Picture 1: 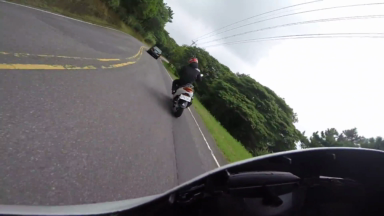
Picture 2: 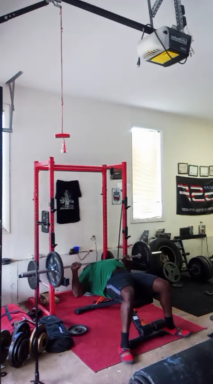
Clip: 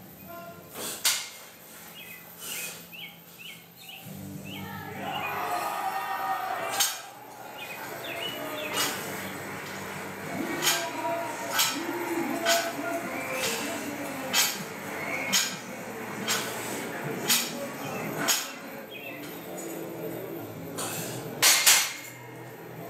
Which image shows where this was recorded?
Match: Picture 2